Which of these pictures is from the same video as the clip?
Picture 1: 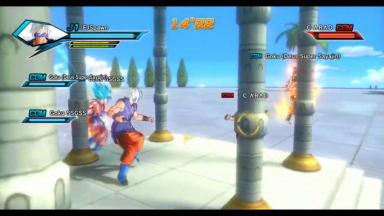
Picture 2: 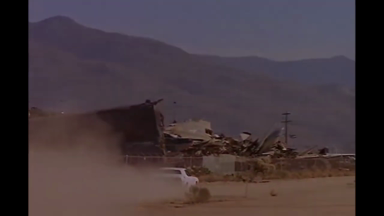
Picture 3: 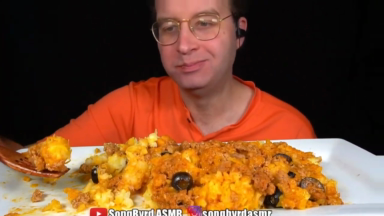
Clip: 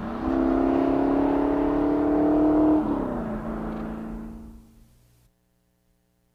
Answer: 2